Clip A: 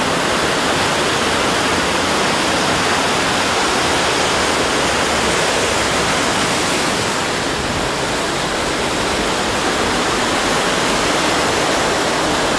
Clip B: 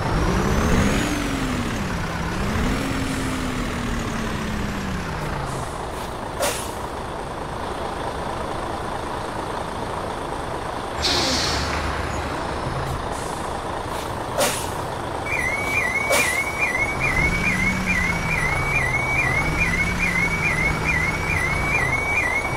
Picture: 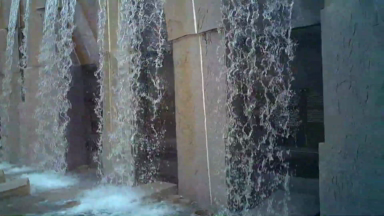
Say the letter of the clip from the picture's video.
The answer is A